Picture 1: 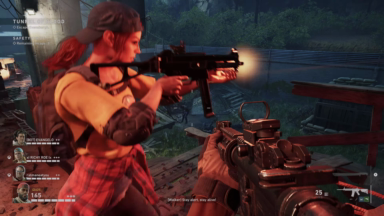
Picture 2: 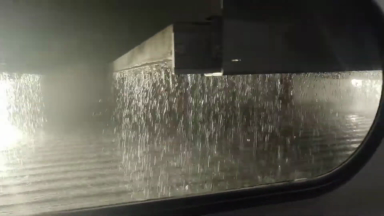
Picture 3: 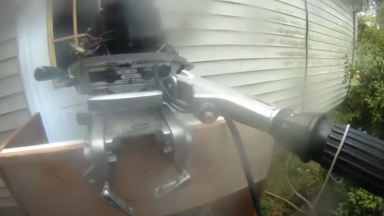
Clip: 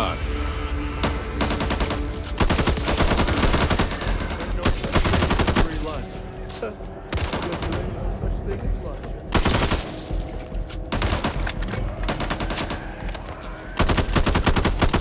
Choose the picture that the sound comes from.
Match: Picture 1